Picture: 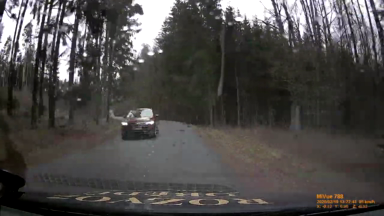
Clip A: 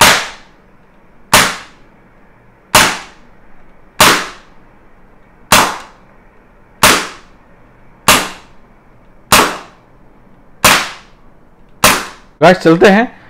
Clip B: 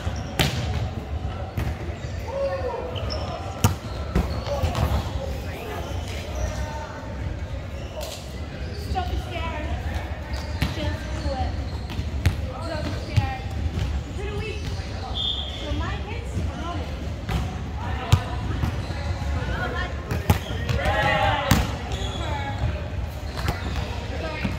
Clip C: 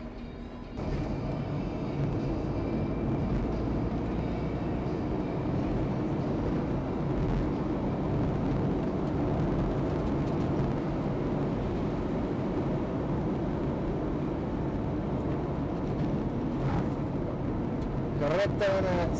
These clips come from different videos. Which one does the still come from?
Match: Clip C